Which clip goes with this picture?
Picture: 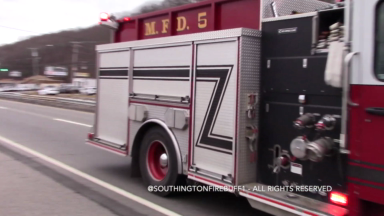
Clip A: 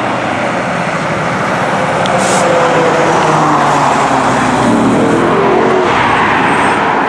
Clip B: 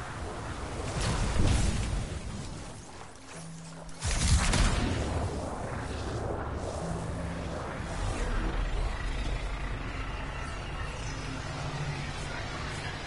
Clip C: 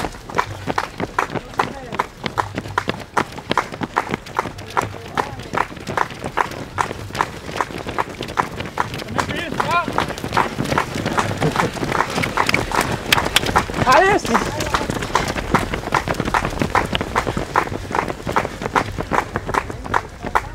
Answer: A